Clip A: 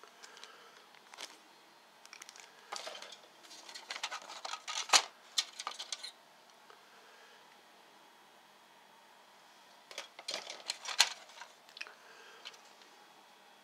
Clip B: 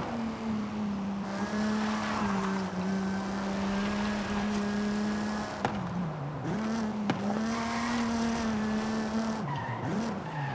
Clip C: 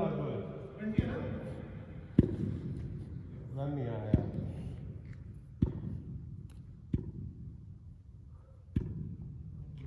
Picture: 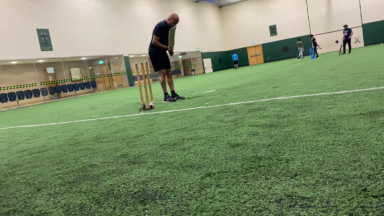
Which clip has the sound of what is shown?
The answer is C